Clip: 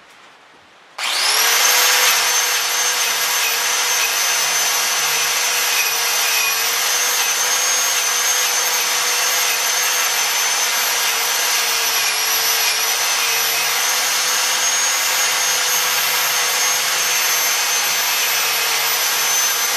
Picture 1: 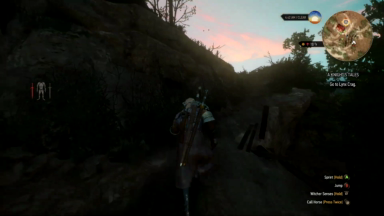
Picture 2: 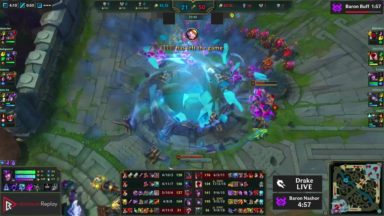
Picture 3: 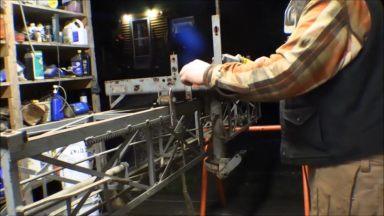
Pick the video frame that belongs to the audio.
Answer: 3